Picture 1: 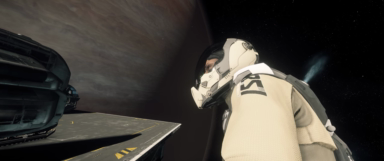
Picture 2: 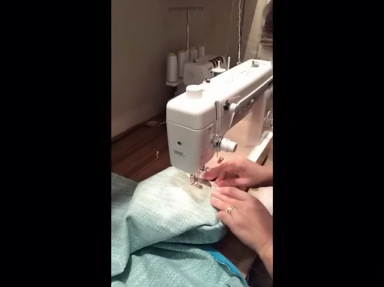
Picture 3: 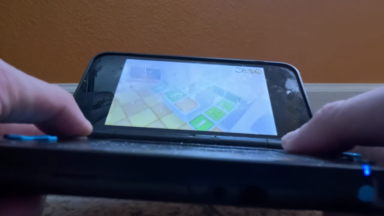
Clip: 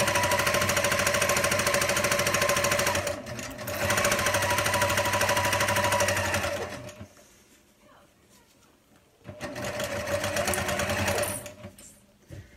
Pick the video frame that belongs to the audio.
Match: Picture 2